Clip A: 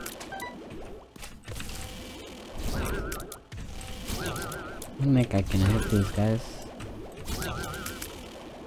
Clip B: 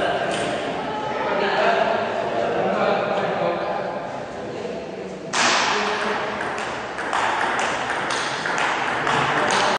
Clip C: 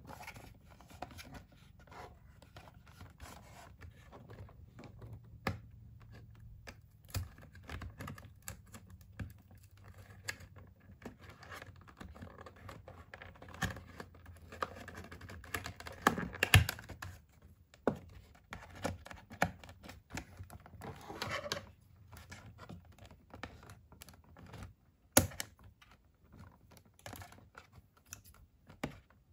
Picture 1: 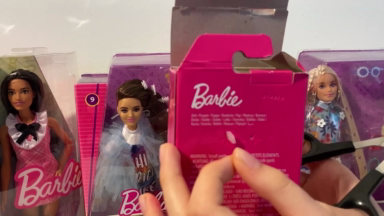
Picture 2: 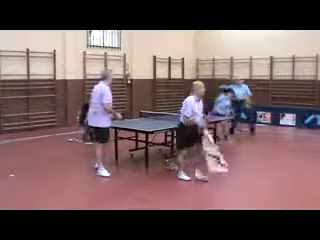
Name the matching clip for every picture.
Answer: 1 C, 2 B